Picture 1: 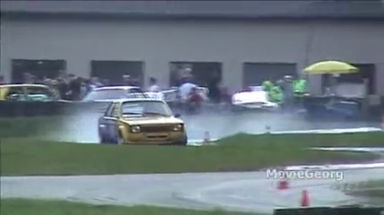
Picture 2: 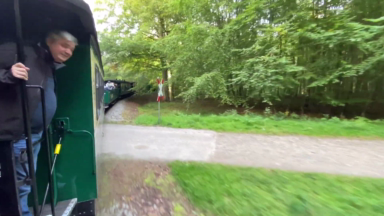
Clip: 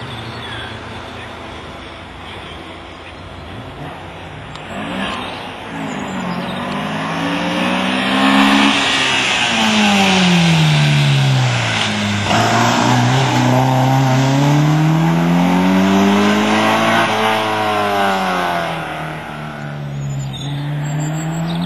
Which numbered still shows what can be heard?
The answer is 1